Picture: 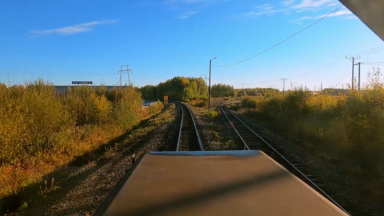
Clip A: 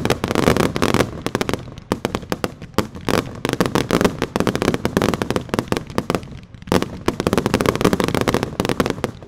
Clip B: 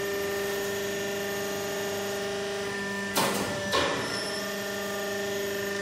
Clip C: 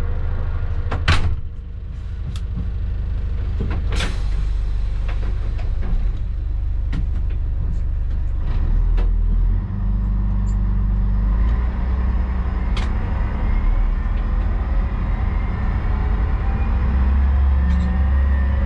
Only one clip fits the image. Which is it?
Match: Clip C